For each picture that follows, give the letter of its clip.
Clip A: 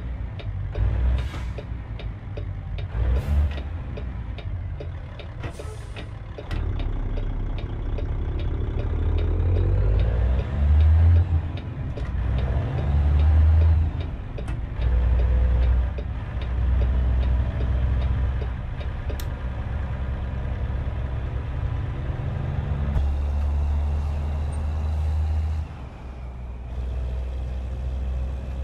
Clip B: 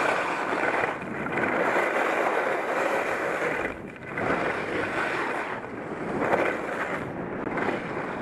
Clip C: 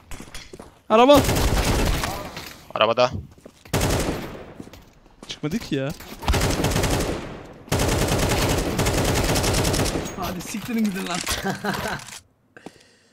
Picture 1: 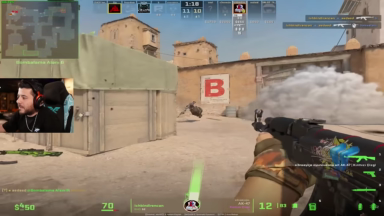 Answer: C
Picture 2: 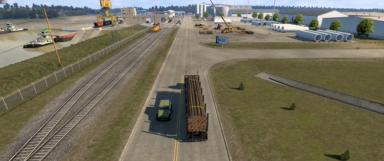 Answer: A